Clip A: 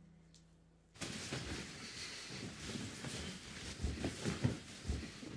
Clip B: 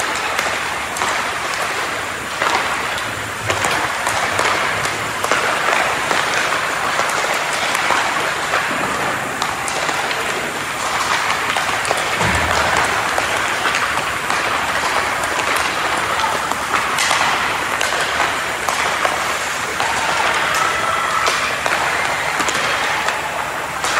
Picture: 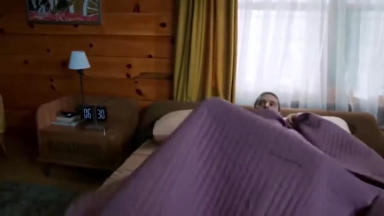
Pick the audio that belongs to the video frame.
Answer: A